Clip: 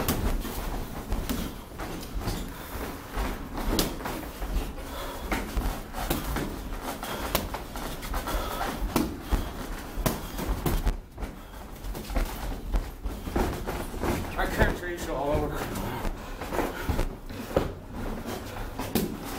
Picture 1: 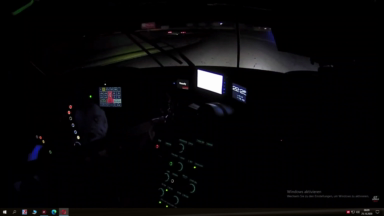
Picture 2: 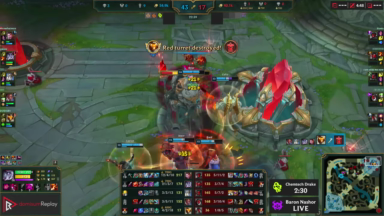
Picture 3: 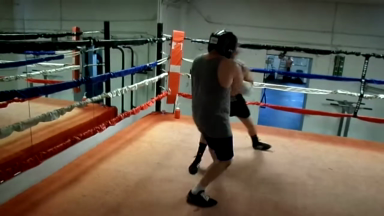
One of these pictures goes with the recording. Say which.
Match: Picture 3